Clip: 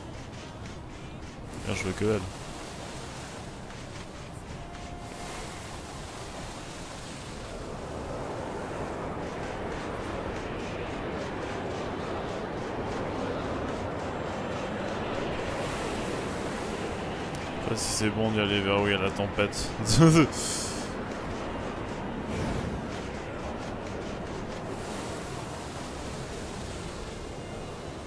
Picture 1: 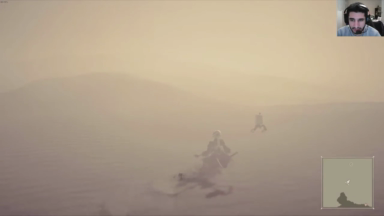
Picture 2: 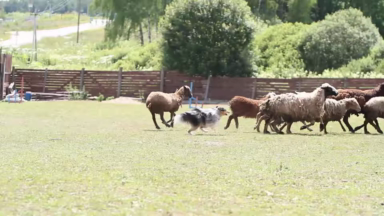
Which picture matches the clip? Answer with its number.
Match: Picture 1